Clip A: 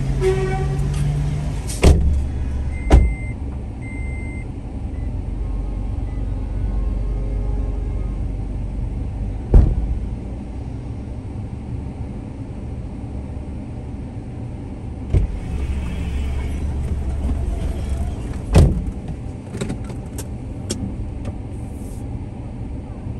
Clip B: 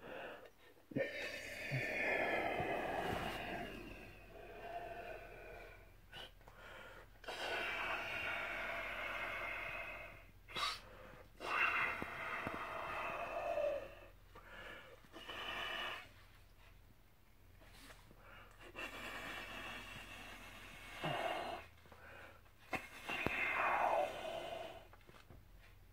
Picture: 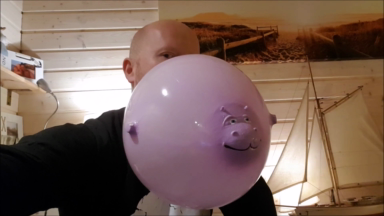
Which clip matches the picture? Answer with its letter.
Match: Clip B